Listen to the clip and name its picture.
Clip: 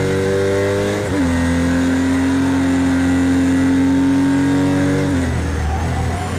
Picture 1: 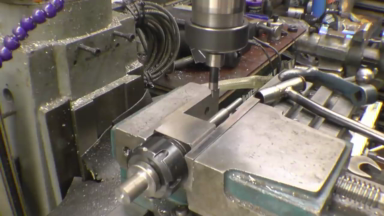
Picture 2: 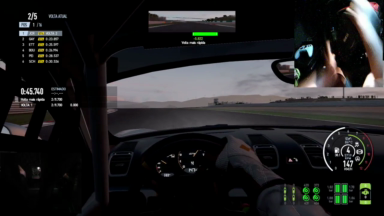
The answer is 2